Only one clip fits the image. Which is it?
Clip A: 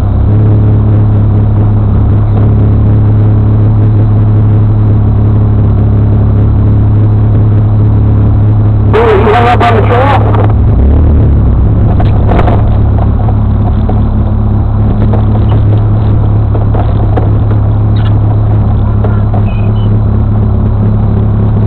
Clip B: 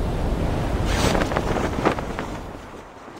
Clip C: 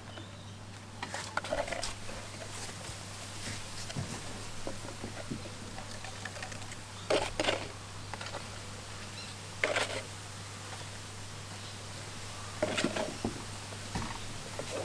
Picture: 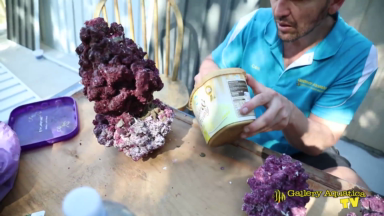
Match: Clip C